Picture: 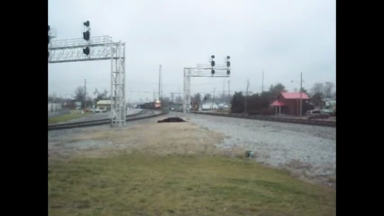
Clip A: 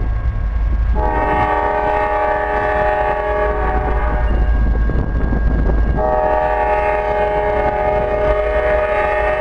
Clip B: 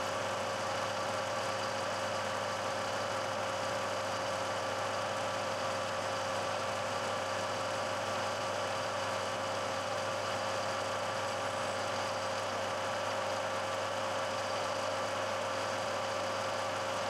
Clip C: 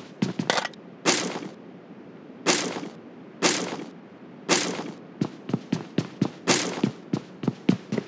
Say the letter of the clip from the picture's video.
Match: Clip A